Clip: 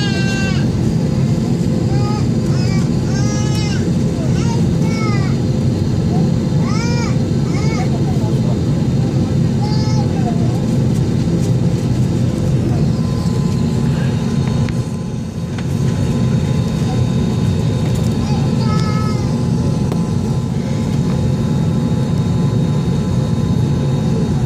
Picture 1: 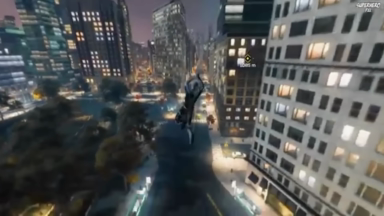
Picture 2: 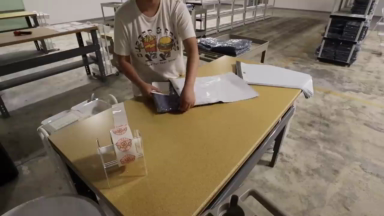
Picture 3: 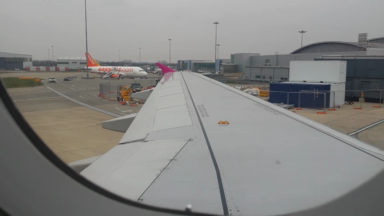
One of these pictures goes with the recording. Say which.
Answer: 3